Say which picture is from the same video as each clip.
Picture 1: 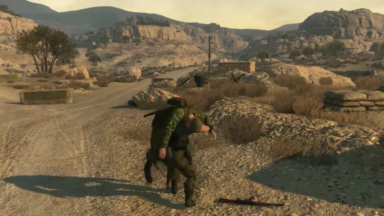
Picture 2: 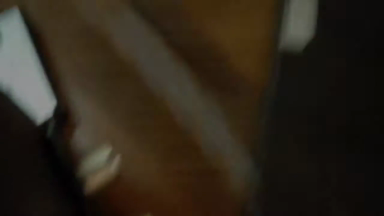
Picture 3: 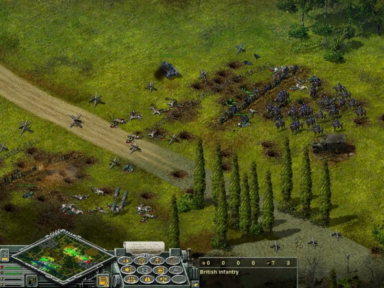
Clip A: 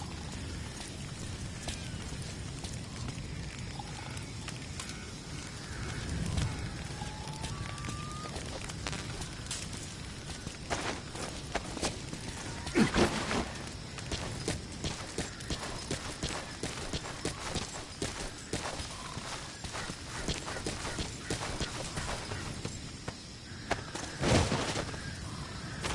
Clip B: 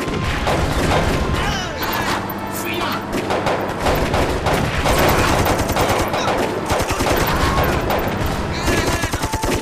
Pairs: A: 1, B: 3